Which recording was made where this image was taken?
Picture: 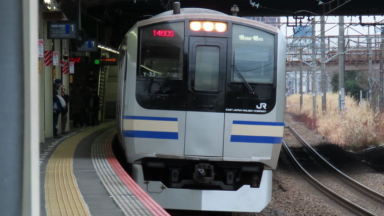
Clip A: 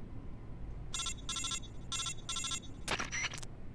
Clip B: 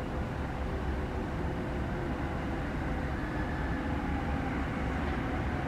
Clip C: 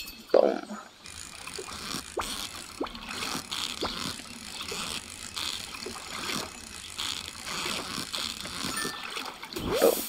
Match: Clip B